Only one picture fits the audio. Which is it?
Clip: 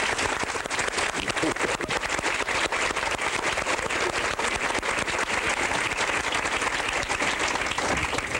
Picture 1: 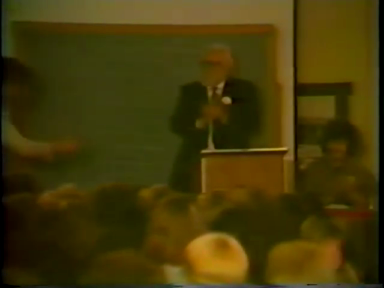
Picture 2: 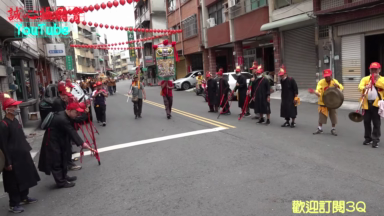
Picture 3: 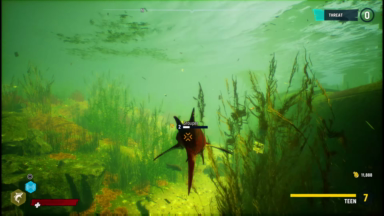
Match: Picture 1